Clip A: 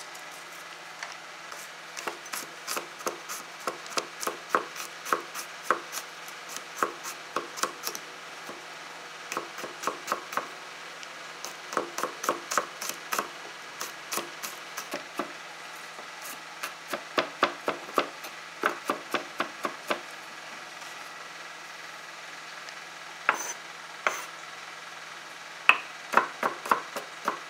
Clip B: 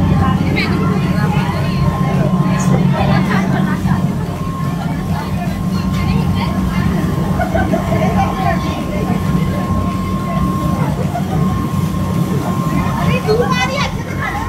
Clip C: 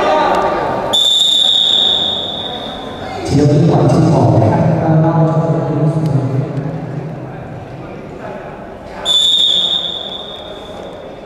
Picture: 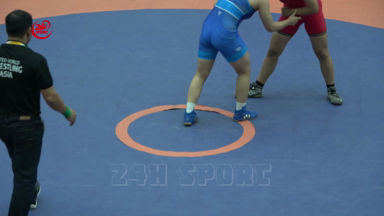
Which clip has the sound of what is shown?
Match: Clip C